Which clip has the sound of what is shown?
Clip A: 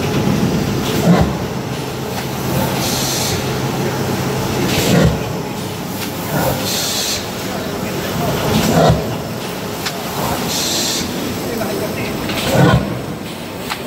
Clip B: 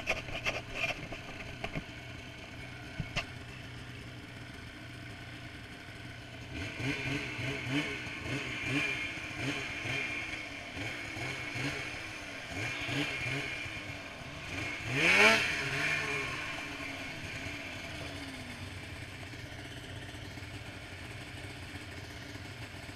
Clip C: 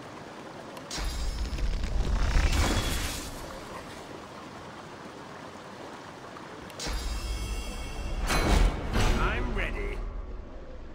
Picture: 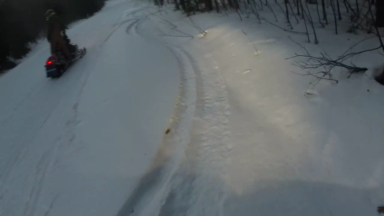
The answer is B